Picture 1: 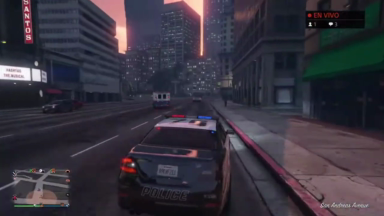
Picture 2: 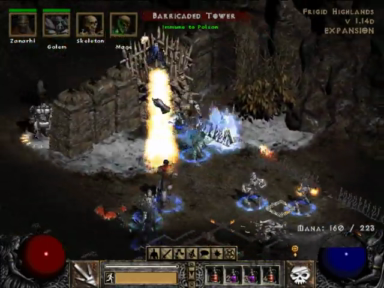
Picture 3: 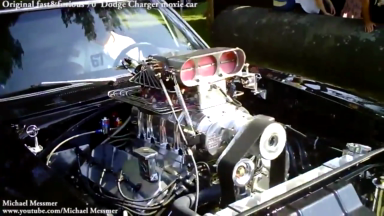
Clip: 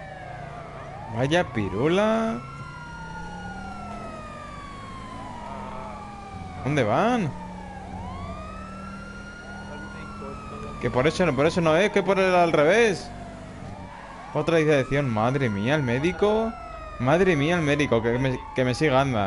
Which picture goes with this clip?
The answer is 1